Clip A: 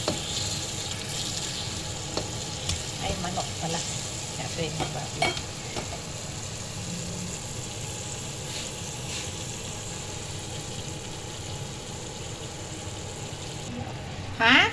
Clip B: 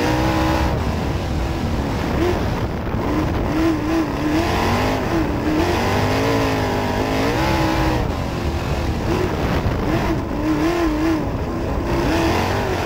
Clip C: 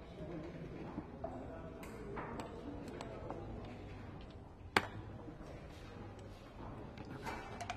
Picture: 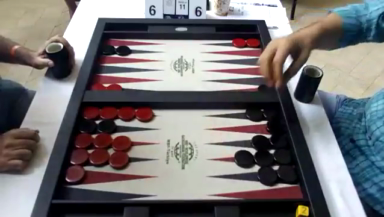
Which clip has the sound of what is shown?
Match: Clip C